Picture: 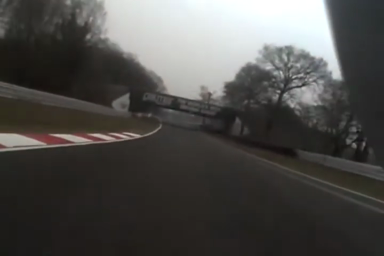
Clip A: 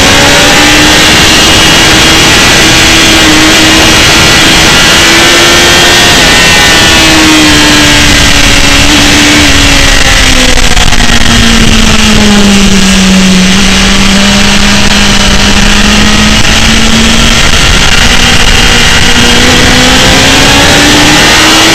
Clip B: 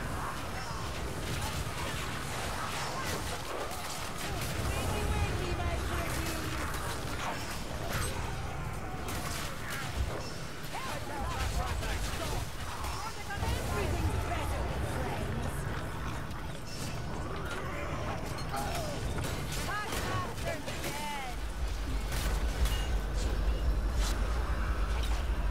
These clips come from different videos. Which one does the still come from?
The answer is A